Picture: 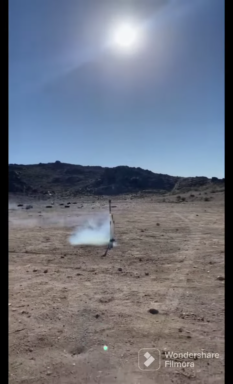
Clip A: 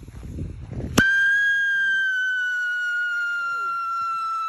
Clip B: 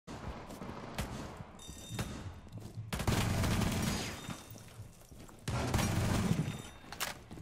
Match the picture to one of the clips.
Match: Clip A